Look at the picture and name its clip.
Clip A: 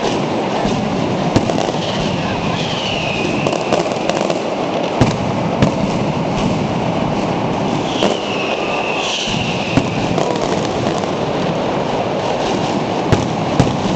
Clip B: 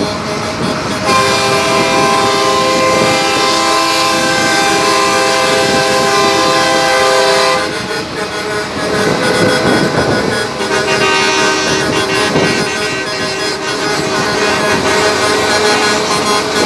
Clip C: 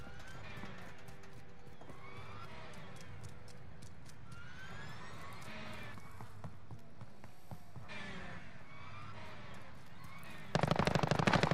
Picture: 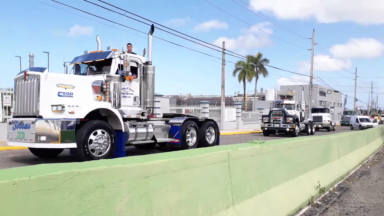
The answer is B